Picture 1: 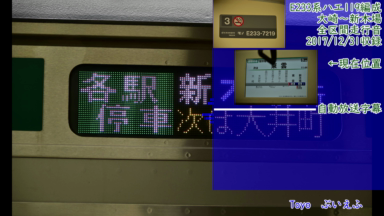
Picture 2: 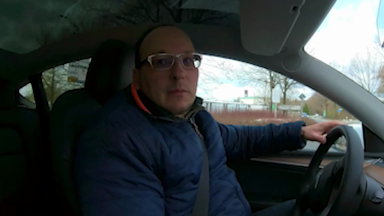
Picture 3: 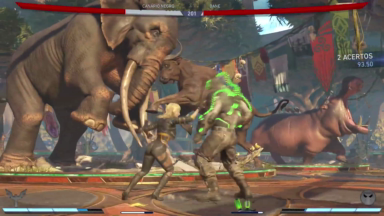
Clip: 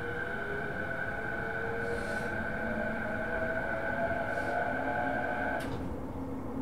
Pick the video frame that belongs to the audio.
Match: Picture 1